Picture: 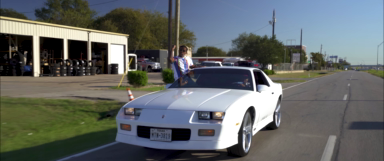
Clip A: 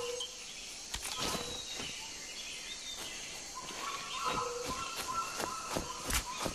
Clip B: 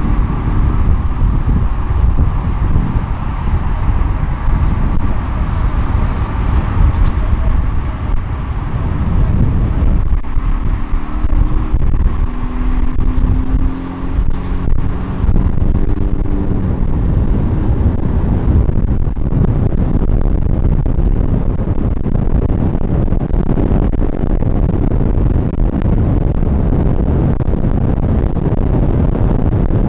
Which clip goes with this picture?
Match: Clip B